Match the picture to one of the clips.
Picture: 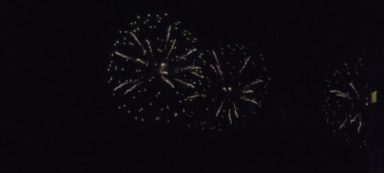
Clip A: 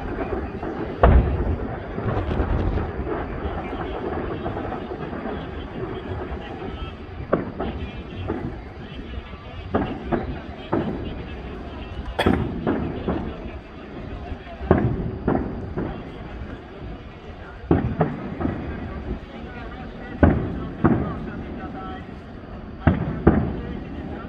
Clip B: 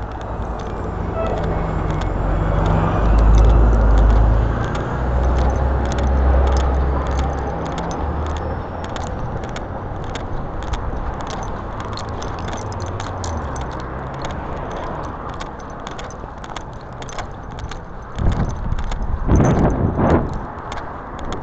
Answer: A